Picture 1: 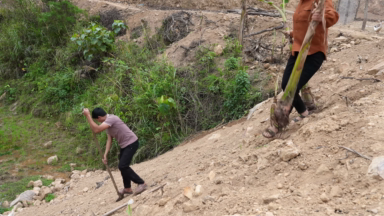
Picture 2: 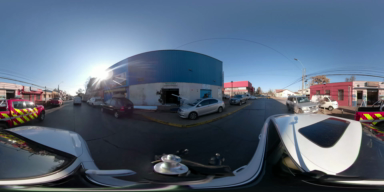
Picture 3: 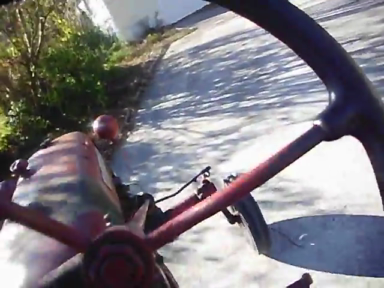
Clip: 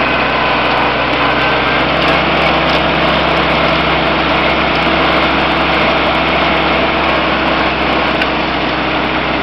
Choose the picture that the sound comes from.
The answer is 3